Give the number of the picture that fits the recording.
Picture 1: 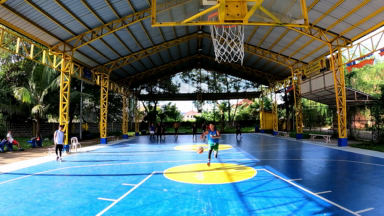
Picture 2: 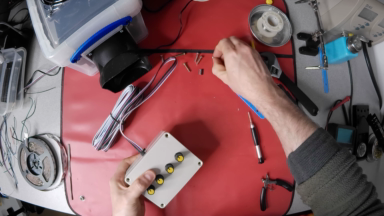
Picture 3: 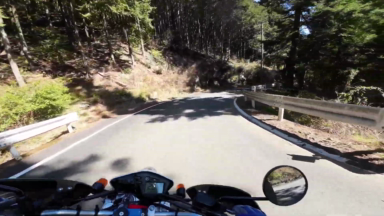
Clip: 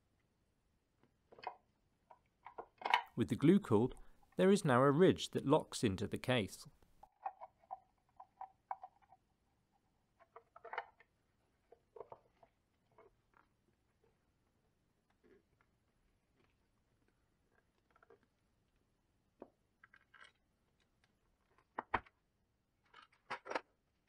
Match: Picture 2